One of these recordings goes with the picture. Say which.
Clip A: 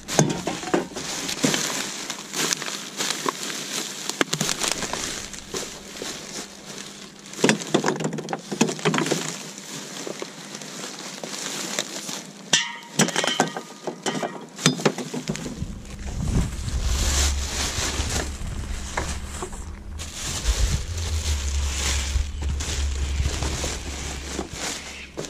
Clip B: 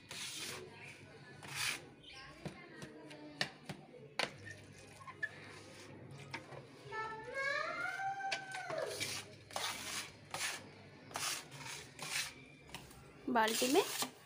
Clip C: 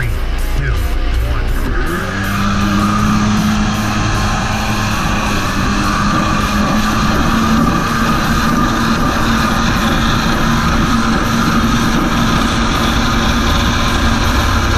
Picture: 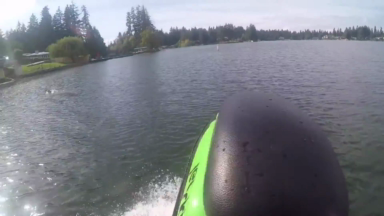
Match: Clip C